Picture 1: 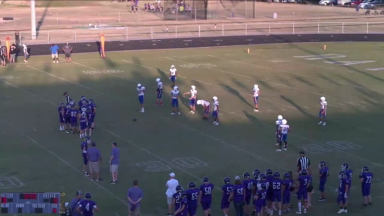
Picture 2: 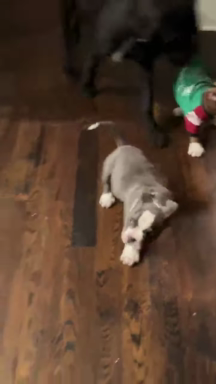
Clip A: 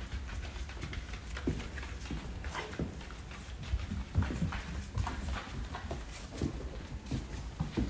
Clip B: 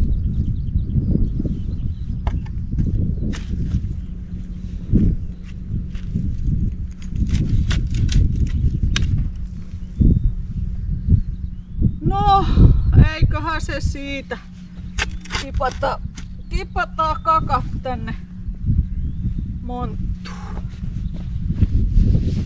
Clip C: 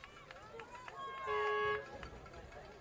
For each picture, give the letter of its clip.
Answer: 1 C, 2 A